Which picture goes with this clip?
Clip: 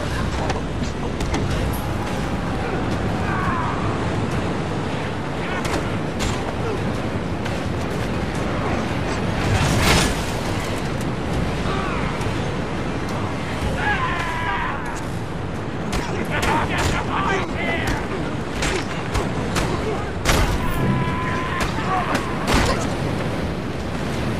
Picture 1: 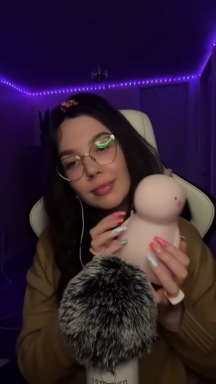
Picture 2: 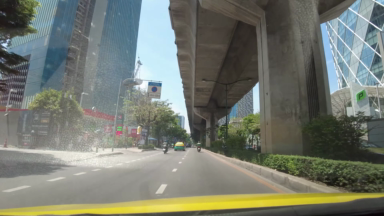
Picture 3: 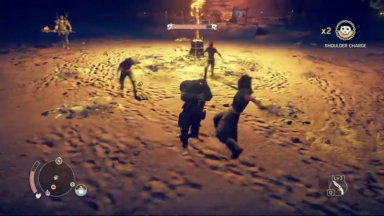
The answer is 3